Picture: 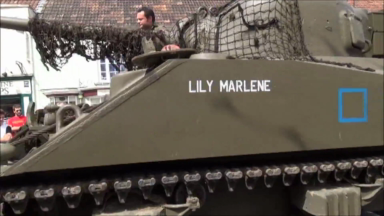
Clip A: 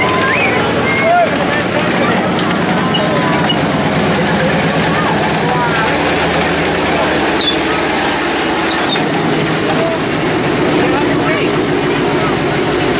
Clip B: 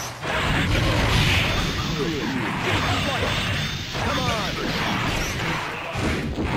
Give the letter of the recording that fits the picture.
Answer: A